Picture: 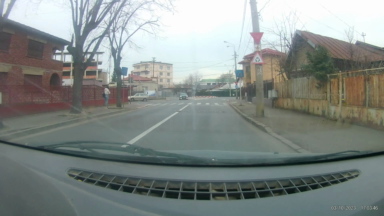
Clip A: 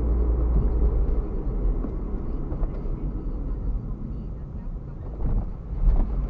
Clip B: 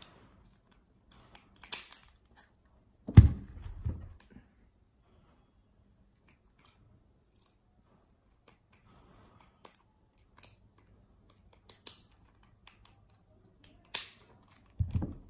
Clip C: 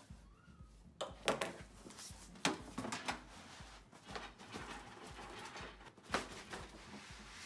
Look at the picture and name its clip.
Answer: A